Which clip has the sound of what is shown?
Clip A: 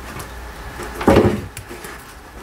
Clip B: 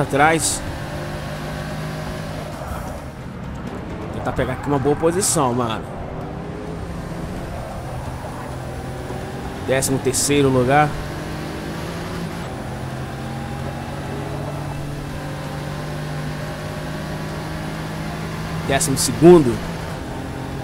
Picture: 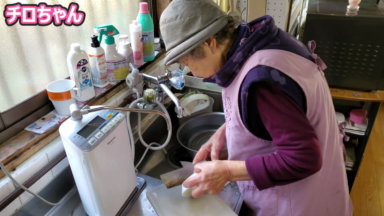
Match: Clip A